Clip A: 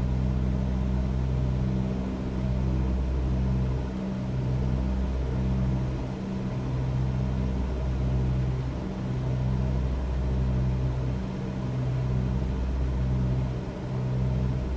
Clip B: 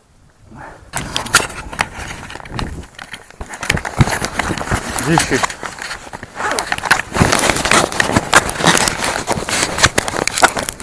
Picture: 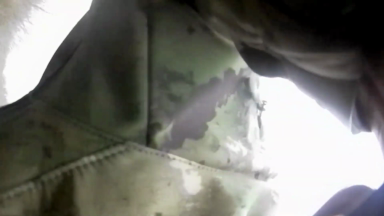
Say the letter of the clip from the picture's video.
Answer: B